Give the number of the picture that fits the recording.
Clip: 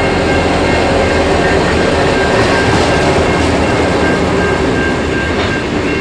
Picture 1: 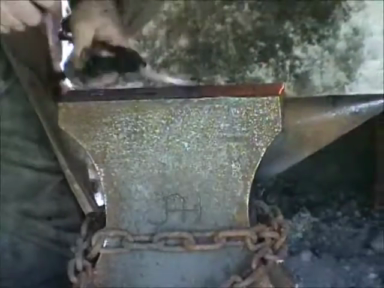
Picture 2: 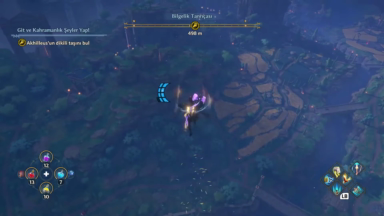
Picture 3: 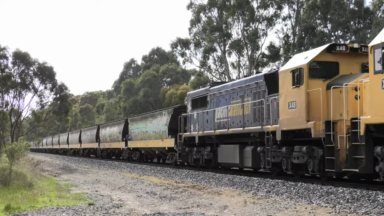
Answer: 3